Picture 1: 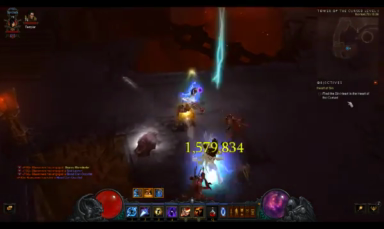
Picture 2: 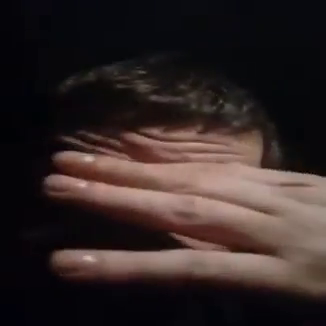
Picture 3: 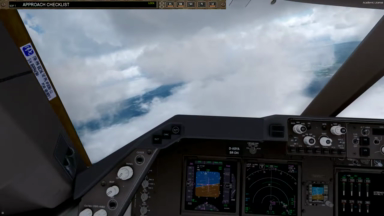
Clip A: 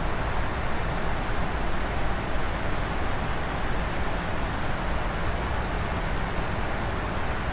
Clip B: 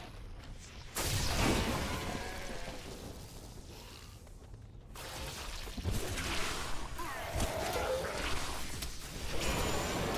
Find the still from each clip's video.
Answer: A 3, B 1